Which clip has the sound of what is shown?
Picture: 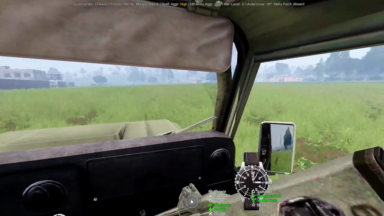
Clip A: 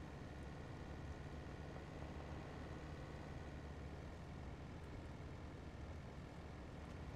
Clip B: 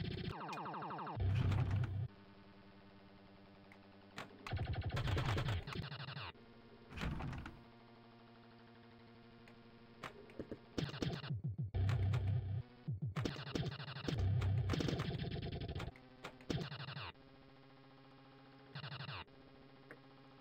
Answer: A